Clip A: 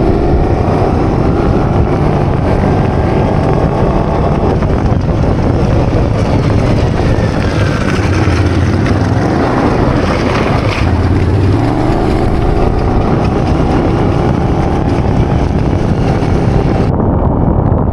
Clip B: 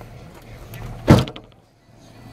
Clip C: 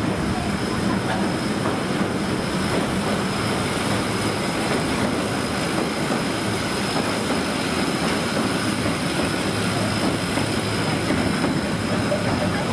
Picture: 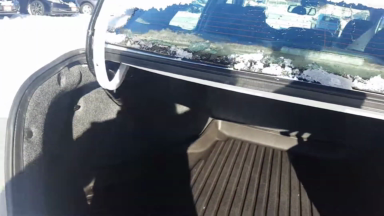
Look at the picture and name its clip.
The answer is B